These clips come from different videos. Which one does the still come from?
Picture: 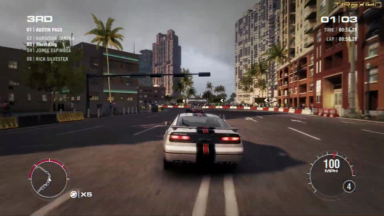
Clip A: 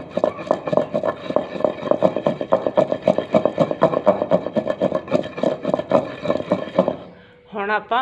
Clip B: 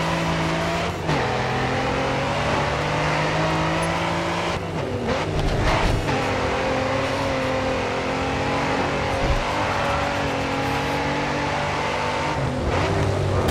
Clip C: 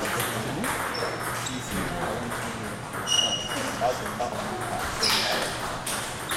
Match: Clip B